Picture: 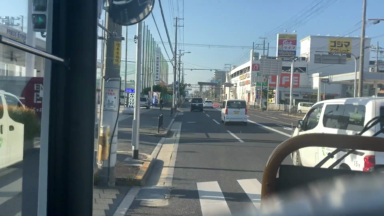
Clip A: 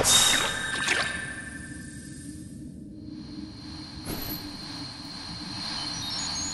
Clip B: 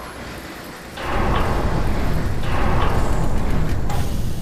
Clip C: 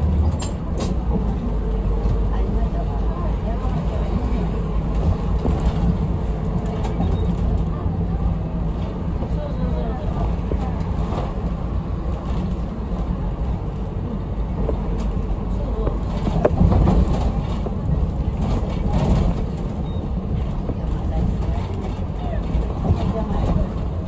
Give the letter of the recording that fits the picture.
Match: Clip C